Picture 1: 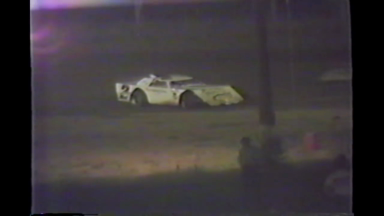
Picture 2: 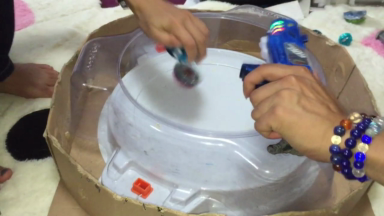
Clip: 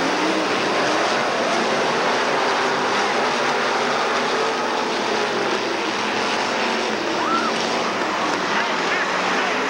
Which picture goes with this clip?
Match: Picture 1